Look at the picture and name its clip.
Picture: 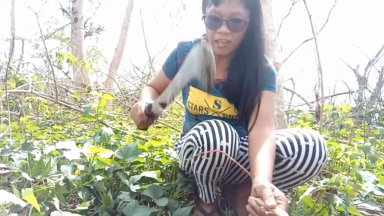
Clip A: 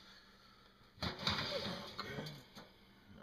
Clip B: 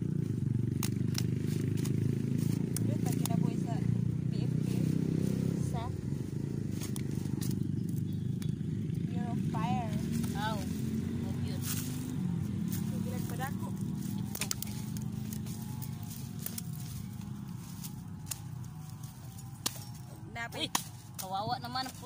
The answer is B